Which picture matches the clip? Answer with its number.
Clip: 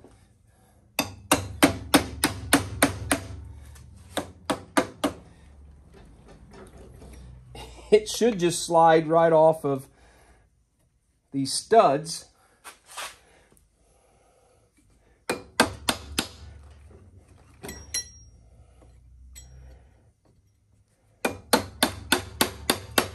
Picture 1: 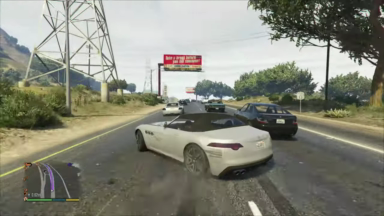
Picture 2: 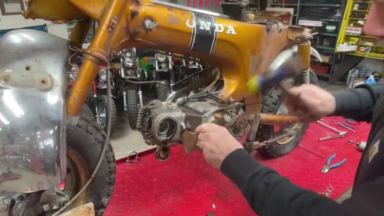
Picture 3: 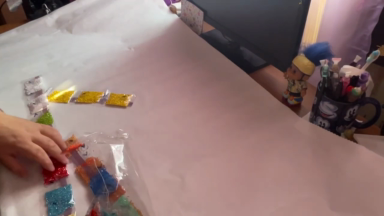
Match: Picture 2